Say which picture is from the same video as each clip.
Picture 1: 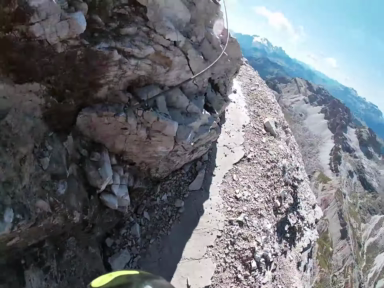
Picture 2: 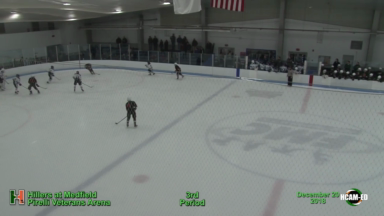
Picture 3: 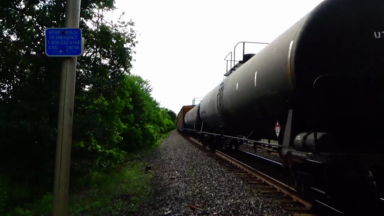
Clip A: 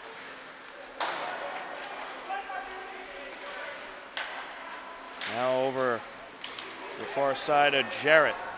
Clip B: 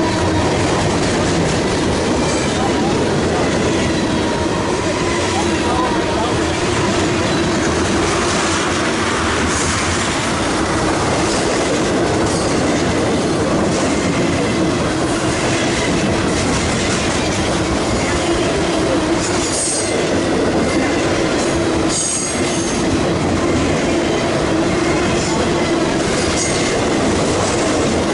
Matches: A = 2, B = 3